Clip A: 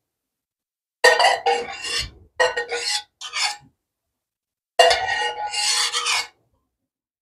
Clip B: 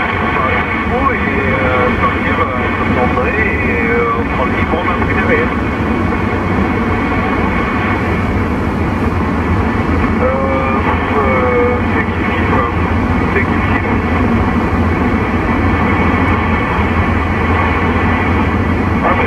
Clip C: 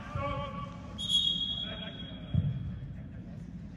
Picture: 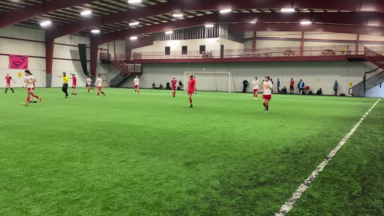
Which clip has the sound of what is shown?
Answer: C